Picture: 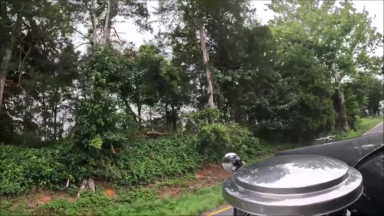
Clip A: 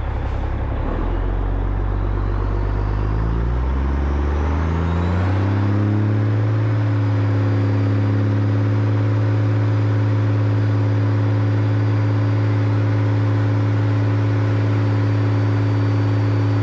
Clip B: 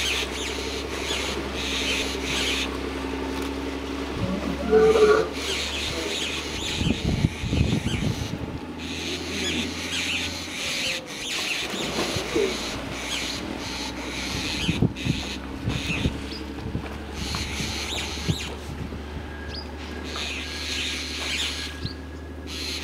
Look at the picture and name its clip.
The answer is A